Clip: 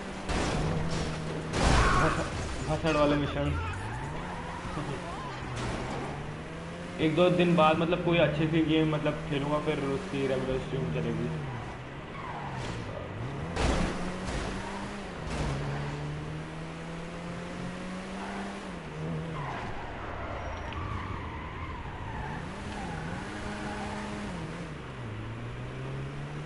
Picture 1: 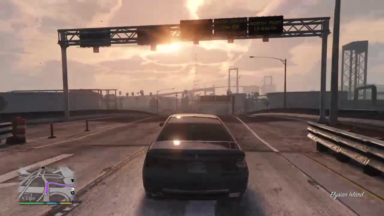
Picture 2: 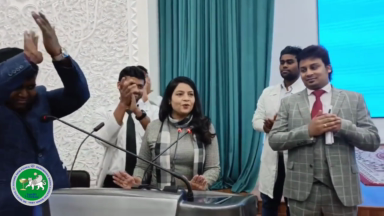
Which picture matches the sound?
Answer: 1